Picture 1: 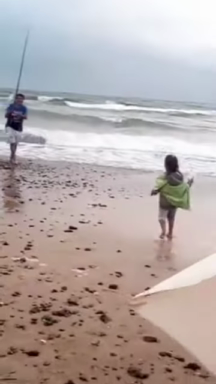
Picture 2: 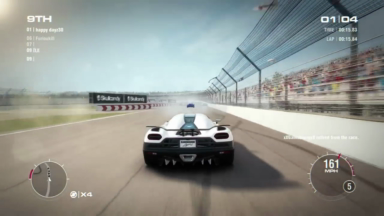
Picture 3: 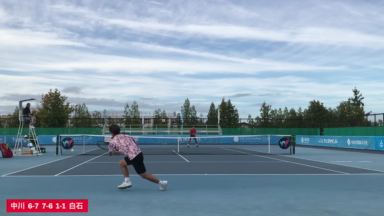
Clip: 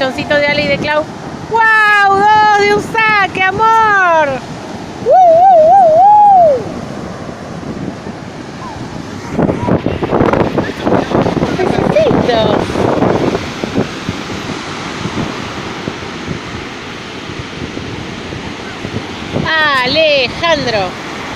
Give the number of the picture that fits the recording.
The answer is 1